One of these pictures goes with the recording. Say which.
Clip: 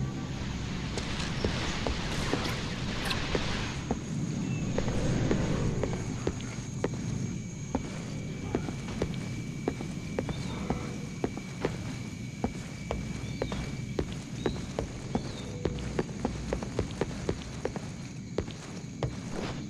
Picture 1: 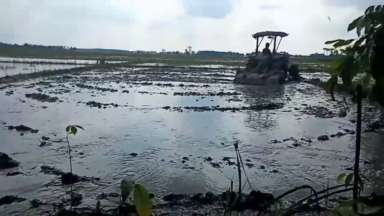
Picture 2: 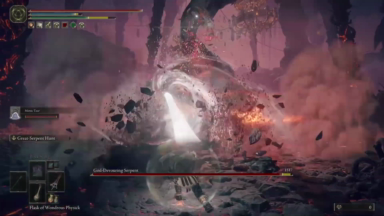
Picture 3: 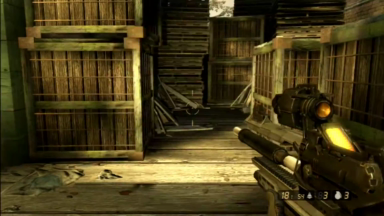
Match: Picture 3